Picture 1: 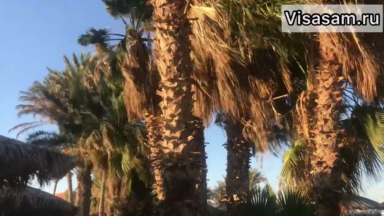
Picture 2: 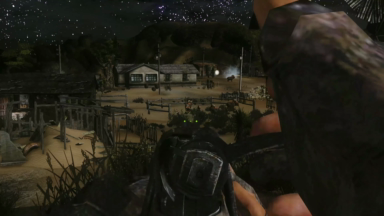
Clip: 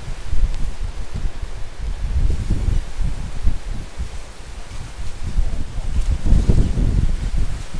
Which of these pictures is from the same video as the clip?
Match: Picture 1